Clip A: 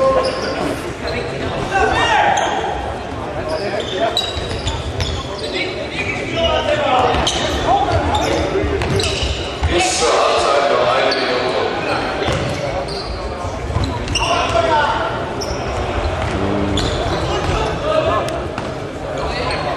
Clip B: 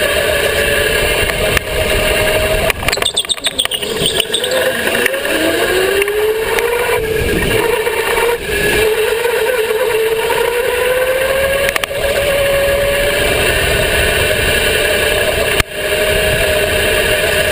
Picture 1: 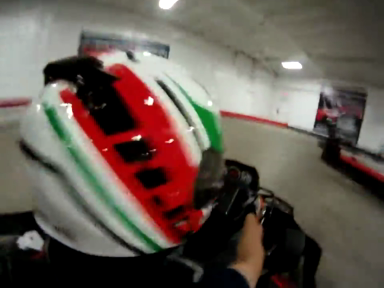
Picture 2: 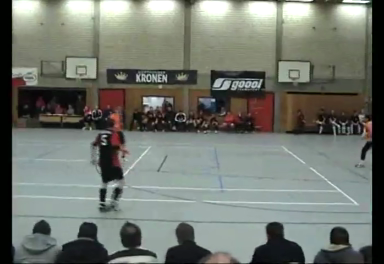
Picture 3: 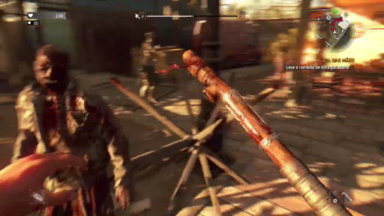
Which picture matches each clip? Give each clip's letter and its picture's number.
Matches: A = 2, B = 1